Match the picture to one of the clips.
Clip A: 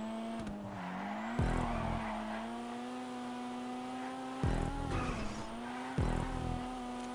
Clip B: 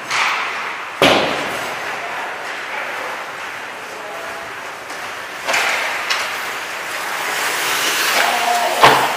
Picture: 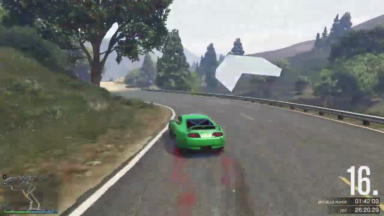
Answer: A